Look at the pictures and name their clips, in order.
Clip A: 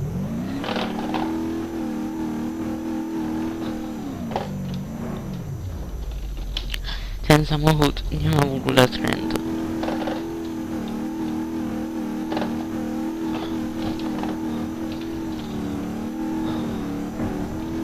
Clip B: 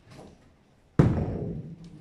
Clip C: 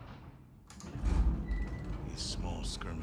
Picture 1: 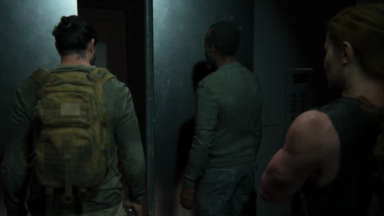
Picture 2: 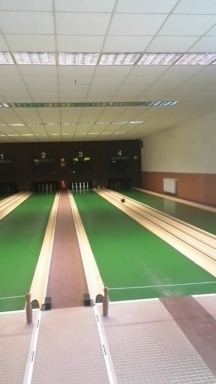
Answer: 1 C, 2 B